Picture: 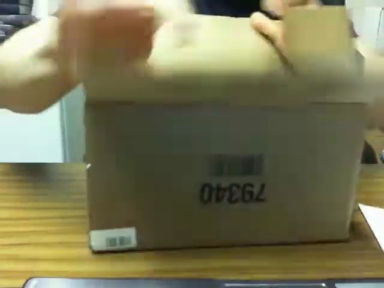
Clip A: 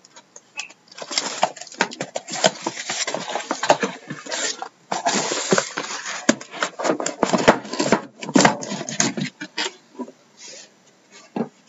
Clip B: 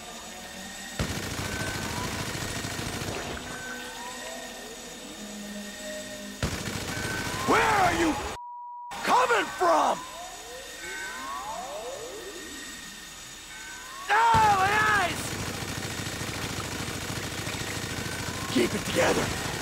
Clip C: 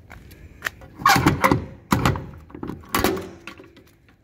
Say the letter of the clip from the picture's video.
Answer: A